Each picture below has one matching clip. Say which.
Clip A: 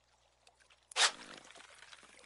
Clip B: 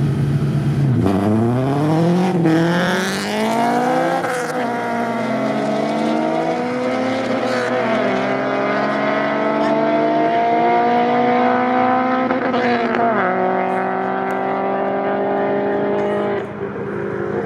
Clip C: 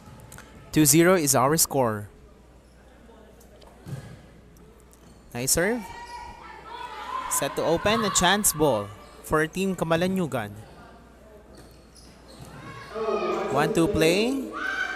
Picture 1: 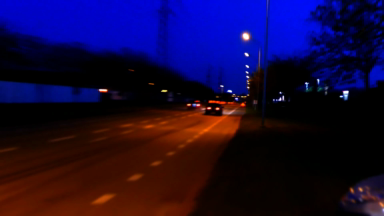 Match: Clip B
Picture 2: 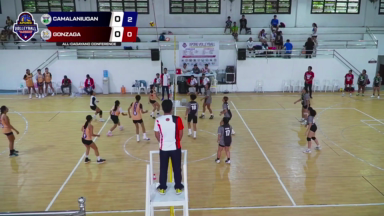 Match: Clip C